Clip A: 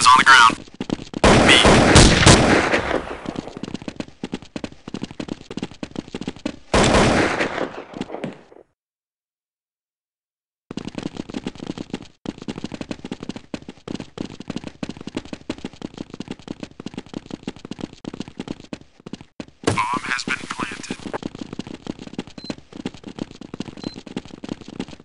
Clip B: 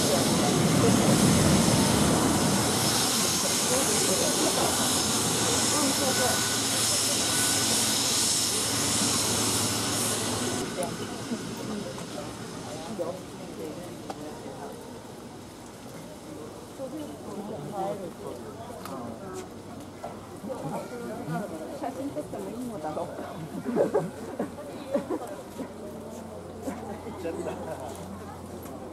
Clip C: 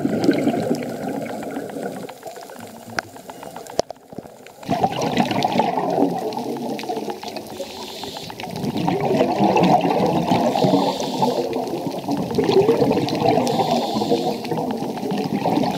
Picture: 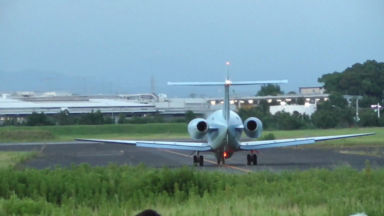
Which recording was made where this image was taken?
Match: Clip B